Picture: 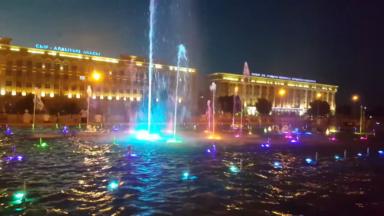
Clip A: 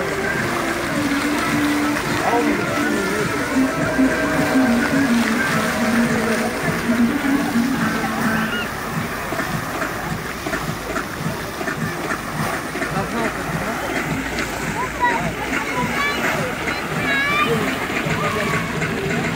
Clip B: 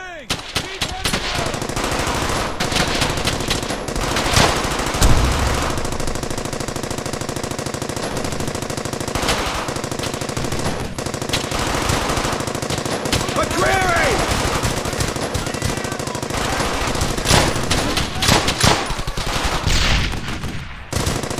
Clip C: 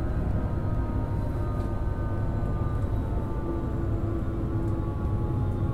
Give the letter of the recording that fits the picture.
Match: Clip A